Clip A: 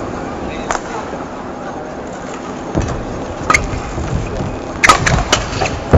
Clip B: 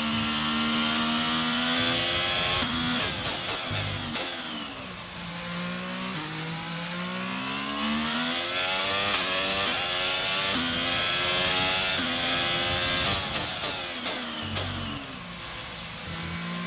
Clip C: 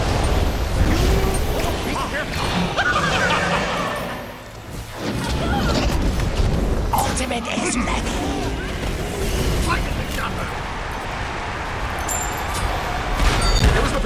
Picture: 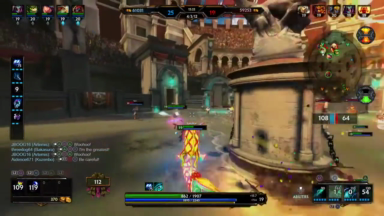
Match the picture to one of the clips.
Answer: C